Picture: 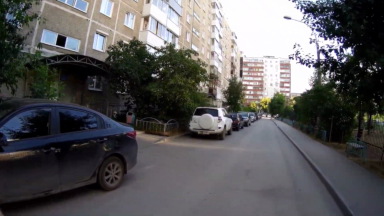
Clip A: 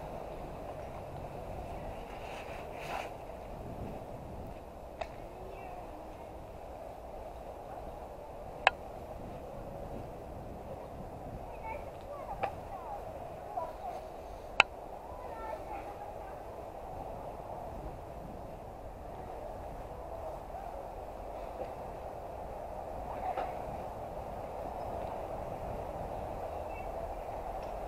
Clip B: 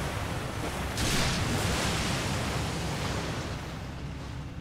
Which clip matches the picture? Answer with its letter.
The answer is A